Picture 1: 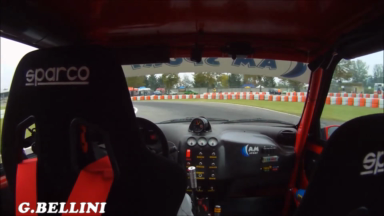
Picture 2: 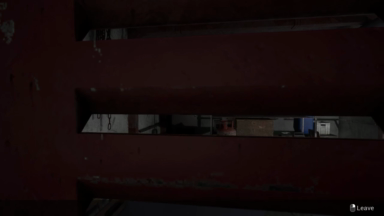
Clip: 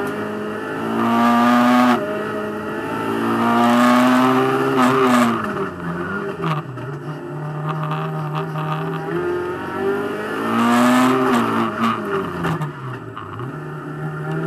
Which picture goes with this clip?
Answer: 1